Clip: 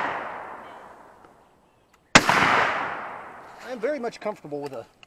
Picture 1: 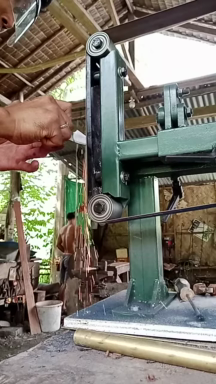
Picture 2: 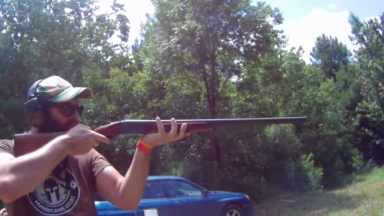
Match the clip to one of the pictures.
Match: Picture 2